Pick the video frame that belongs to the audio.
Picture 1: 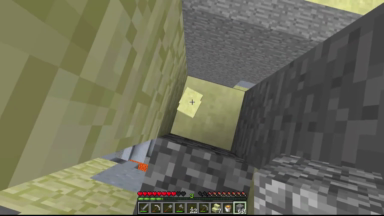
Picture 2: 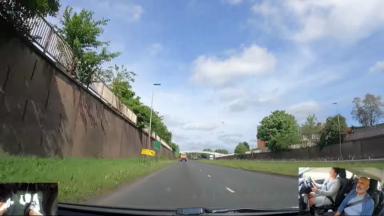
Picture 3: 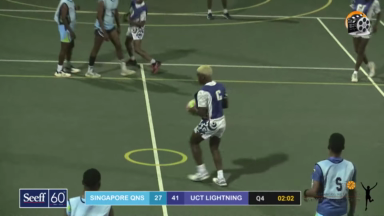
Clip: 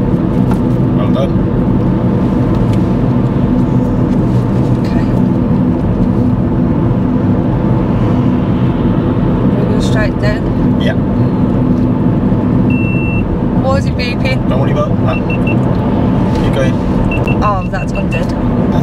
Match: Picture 2